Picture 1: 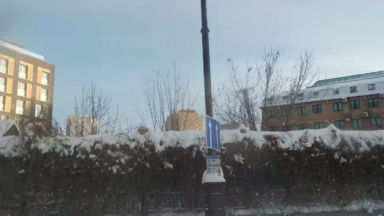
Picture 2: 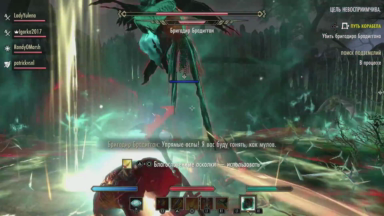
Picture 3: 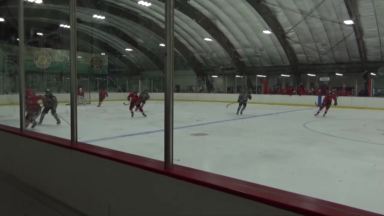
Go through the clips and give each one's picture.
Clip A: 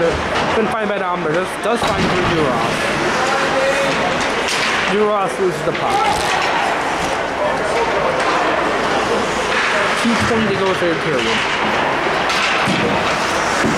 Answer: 3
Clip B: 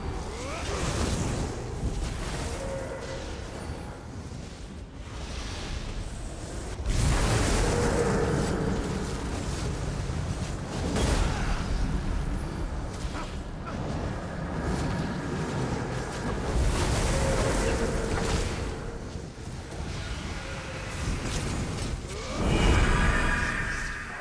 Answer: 2